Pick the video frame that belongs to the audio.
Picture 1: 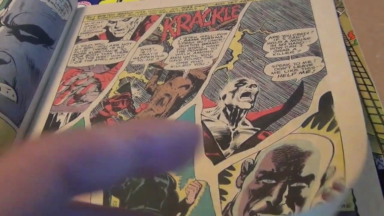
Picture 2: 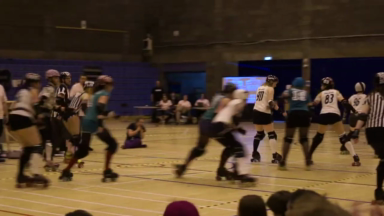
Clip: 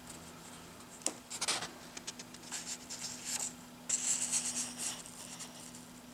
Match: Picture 1